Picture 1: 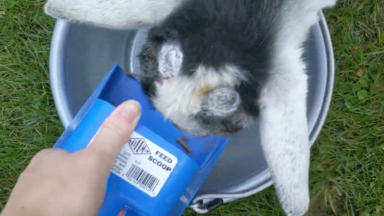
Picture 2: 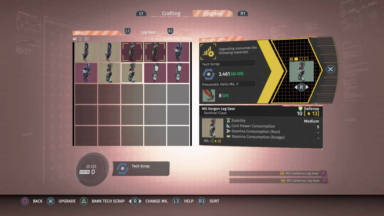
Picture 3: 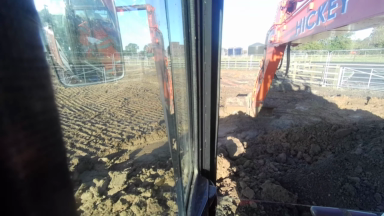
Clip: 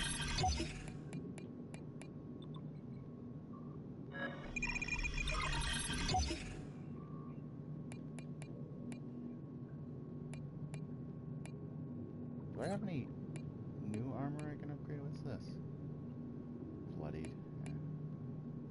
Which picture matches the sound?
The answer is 2